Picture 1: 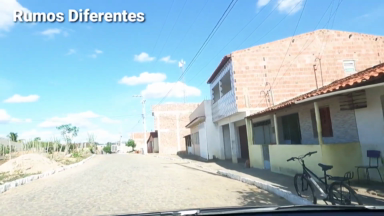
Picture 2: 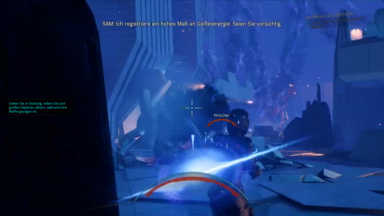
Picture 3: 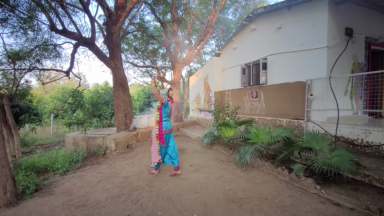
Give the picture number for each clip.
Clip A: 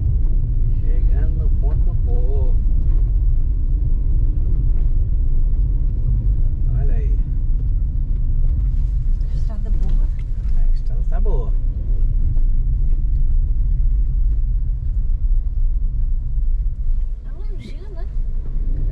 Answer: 1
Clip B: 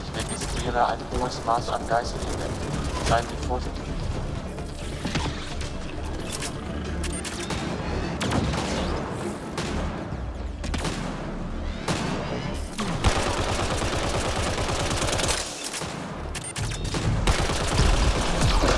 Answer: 2